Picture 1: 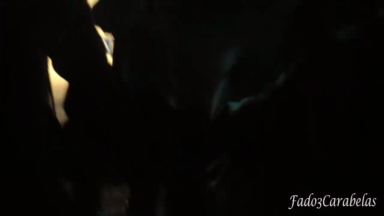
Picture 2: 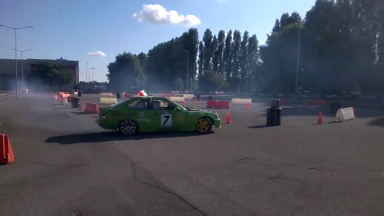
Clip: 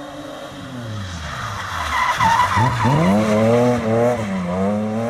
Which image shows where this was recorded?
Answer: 2